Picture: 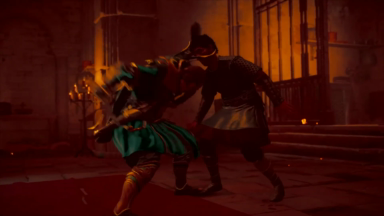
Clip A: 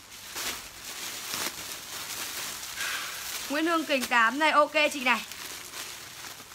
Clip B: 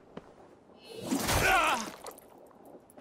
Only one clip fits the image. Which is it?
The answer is B